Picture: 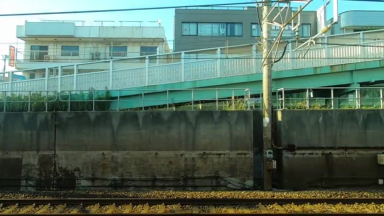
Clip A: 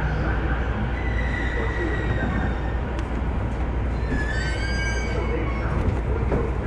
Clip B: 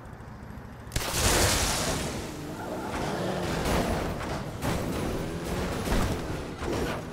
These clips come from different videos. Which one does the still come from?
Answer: A